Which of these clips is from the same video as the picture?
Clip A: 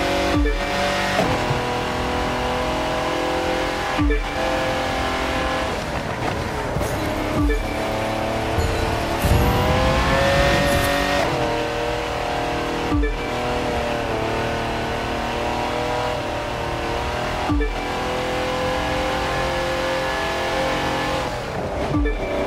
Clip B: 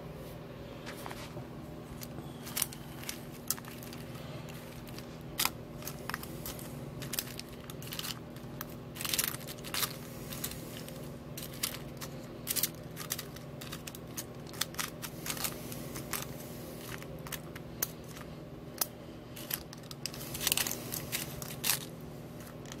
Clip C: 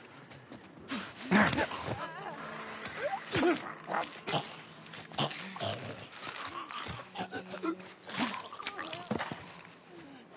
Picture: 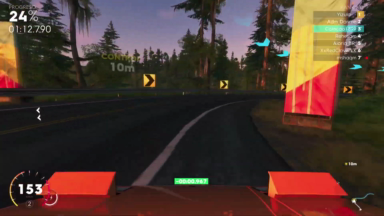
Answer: A